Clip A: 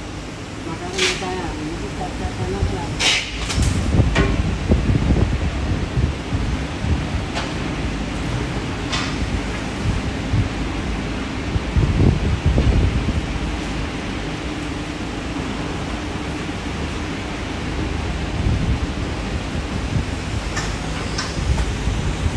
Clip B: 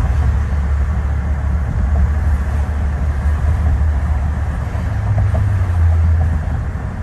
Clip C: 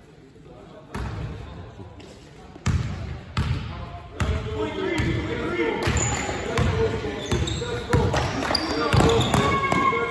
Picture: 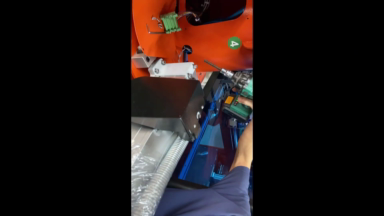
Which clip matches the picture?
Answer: A